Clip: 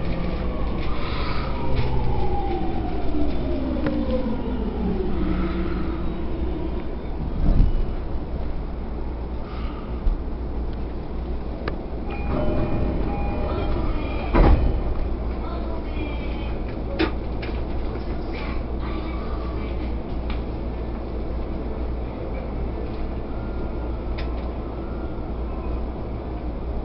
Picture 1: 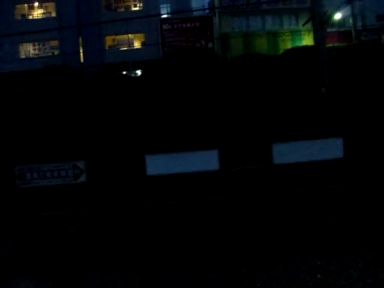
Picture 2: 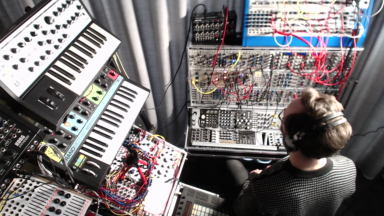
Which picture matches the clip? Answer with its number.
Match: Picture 1